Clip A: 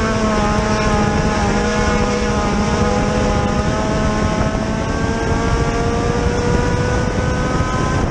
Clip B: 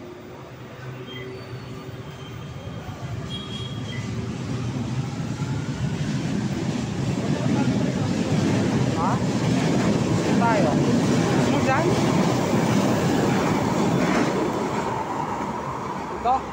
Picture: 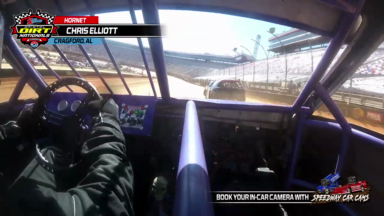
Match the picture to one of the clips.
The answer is A